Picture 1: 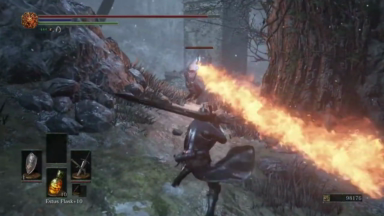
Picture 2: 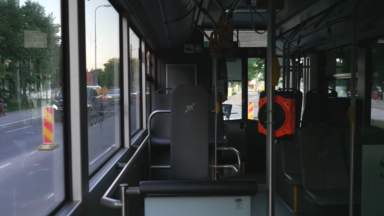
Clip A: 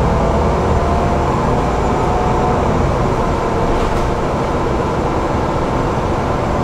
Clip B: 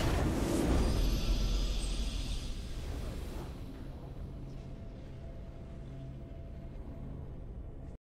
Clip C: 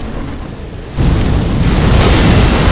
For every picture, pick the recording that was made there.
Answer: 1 C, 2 A